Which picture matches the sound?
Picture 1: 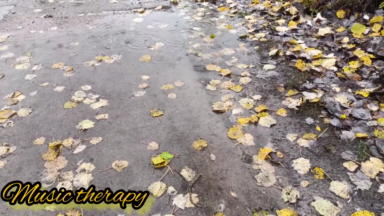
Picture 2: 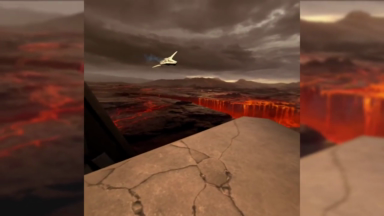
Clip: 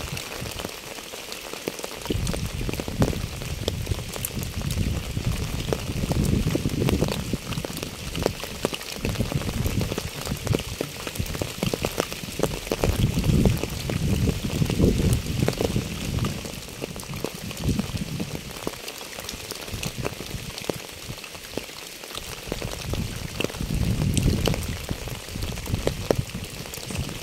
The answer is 1